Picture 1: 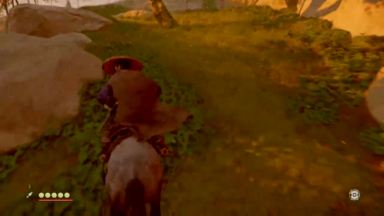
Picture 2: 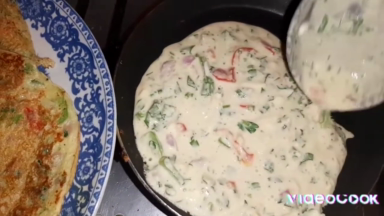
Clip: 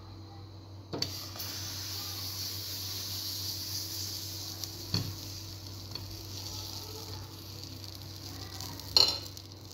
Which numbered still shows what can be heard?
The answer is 2